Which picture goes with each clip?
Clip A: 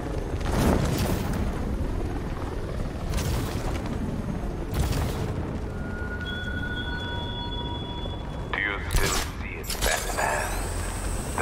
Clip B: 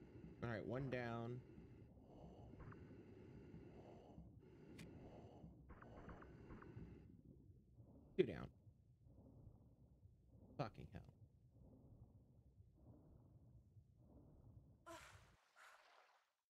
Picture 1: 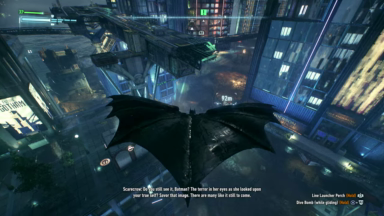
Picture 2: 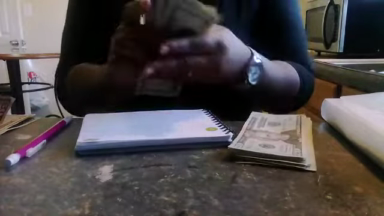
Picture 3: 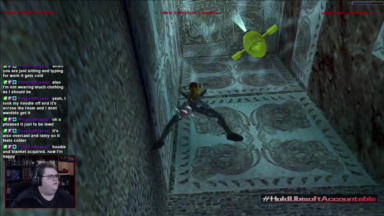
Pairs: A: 1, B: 3